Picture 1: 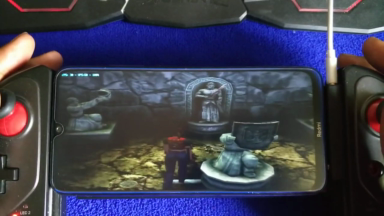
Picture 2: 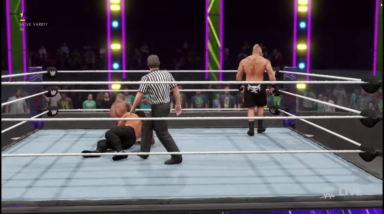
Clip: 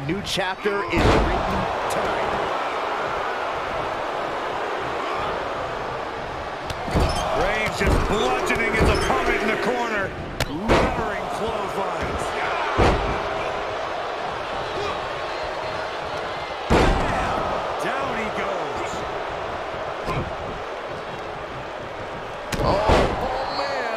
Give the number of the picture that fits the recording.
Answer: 2